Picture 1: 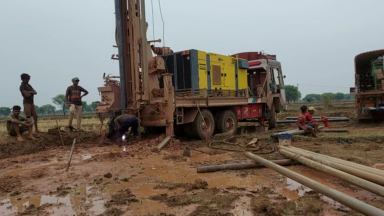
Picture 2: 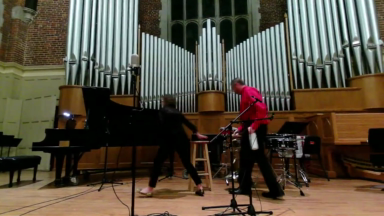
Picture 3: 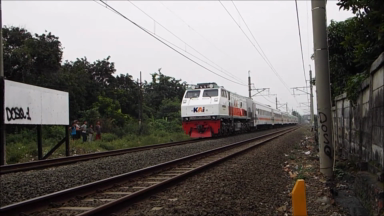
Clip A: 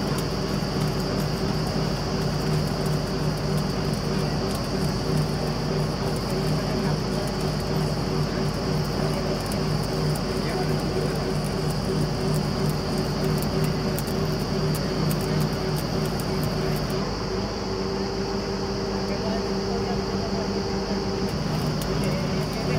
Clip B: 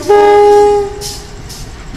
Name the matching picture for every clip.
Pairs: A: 1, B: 3